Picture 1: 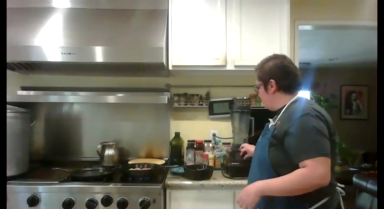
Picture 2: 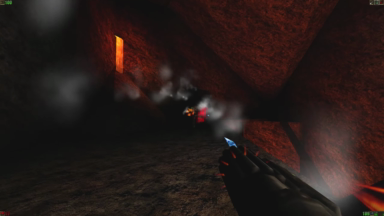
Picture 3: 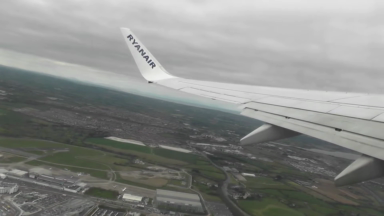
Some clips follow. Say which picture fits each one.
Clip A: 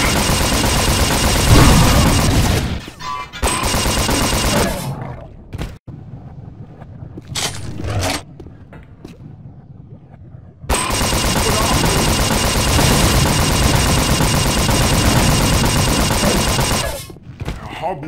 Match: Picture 2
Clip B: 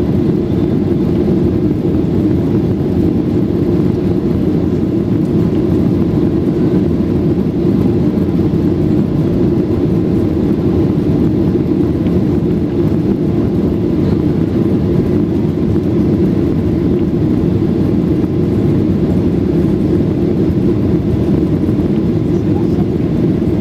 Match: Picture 3